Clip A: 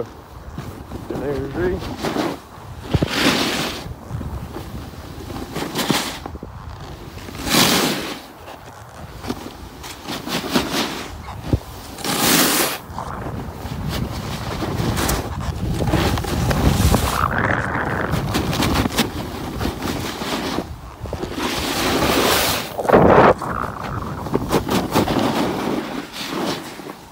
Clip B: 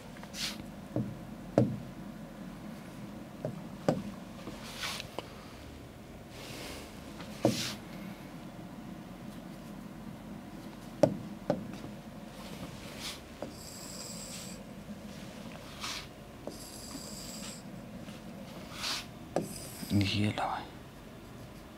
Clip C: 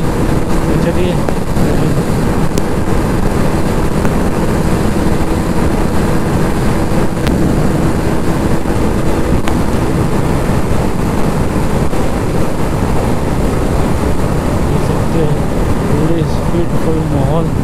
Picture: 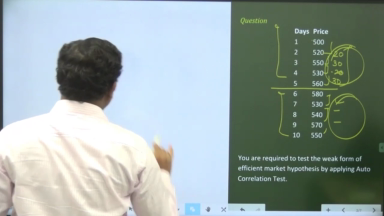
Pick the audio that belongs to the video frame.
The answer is B